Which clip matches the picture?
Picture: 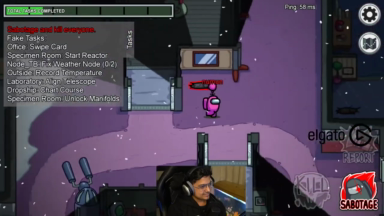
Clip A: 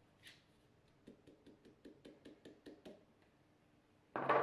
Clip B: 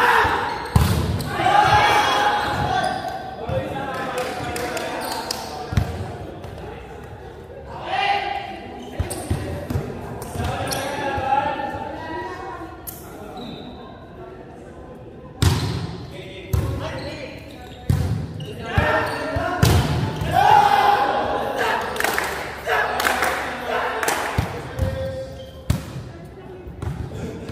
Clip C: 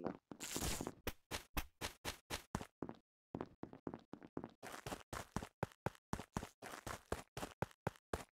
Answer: C